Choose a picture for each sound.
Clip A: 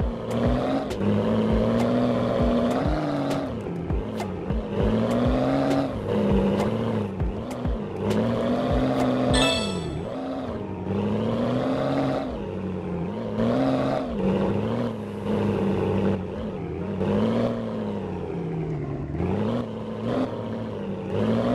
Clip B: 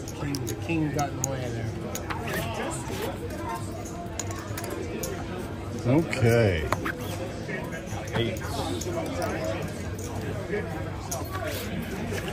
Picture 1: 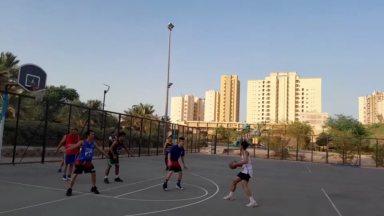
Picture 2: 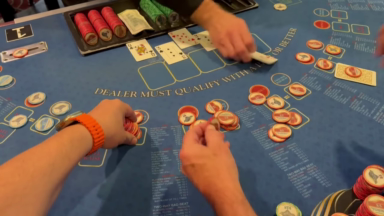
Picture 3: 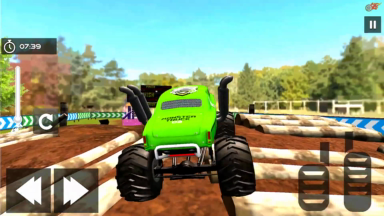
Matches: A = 3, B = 2